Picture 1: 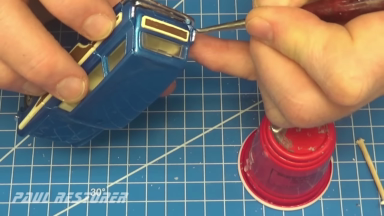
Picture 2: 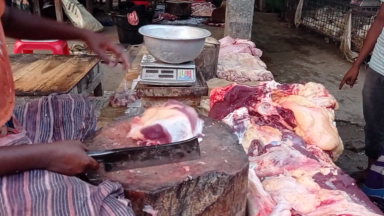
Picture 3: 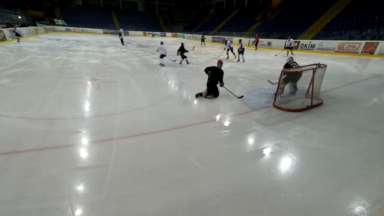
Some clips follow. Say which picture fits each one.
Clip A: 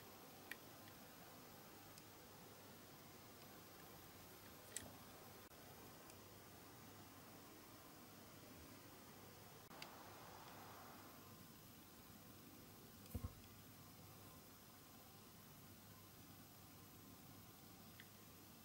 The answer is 1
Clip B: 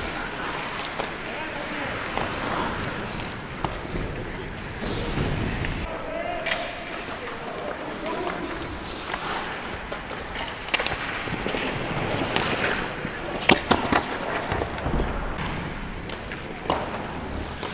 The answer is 3